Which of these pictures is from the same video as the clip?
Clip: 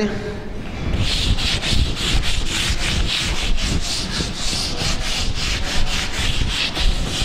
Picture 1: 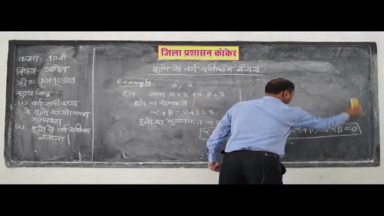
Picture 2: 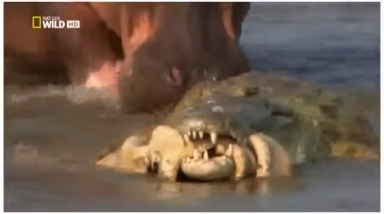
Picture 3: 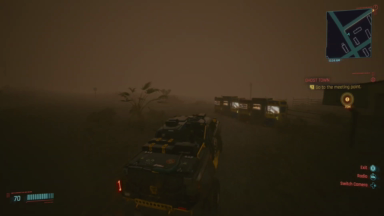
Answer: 1